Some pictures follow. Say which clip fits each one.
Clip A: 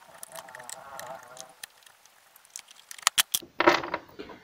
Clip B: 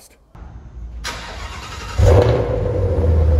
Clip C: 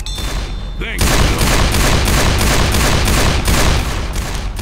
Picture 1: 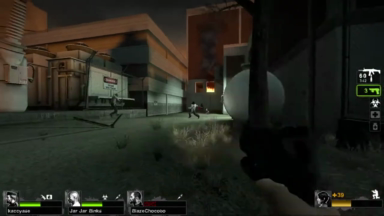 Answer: C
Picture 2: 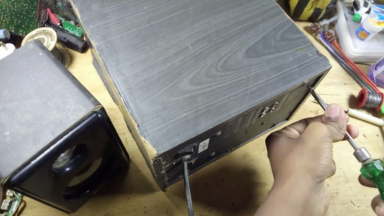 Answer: A